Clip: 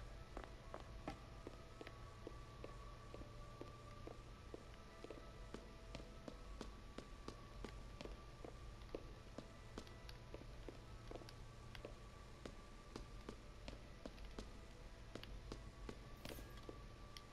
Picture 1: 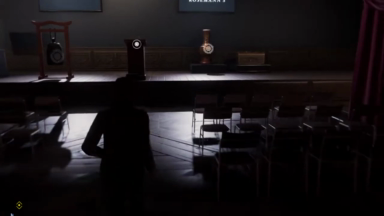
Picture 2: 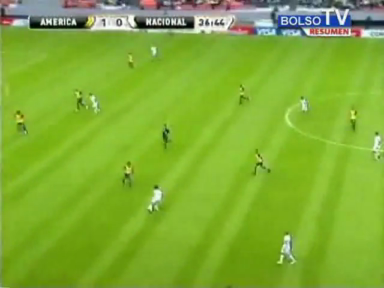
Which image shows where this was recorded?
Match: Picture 1